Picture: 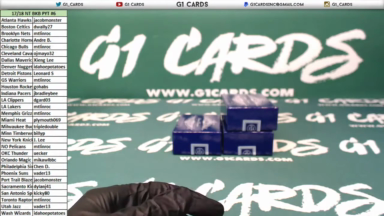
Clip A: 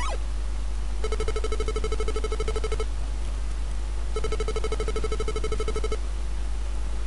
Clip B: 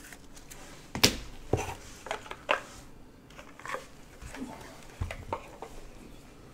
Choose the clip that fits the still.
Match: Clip B